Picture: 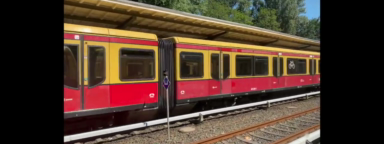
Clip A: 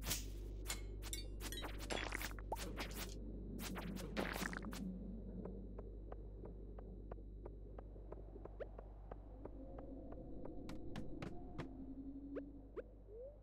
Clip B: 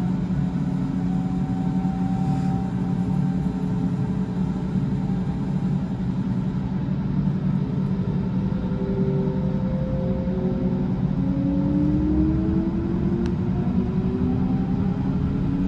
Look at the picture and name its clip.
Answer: B